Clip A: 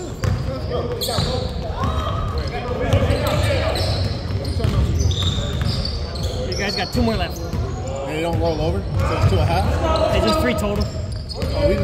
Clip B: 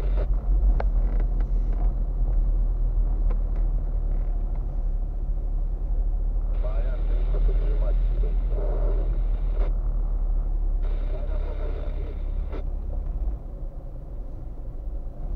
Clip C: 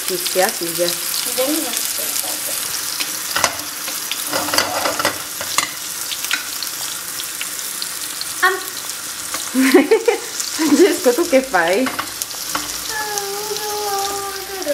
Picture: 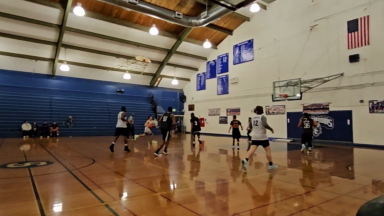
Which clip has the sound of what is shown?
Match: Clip A